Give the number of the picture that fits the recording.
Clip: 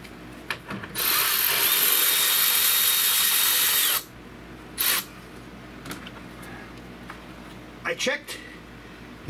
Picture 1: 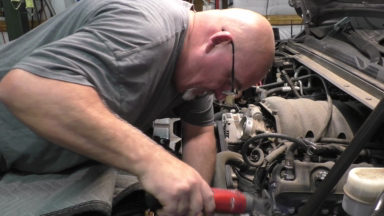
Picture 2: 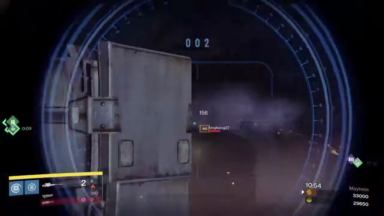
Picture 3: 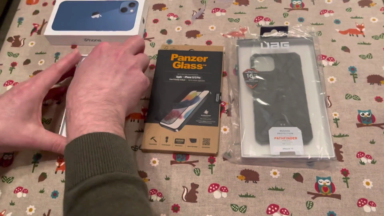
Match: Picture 1